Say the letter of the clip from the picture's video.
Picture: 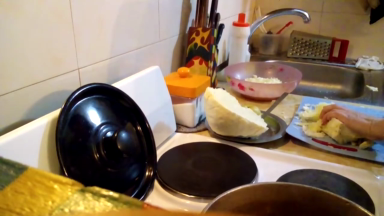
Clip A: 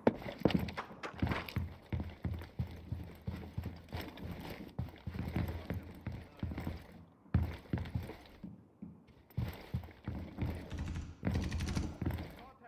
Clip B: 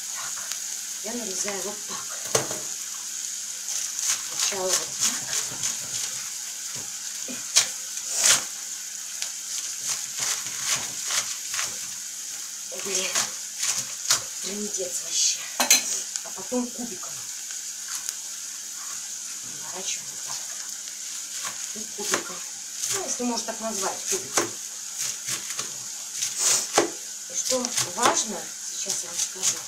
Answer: B